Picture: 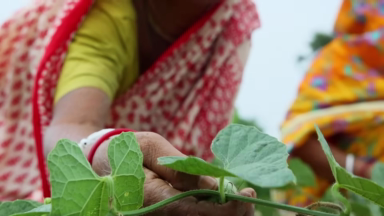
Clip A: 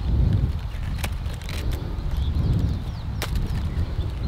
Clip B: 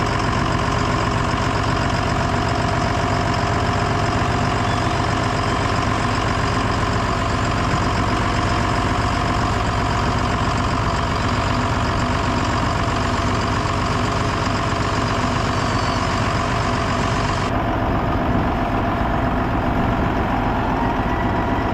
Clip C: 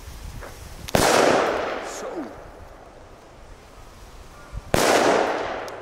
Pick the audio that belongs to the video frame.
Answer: A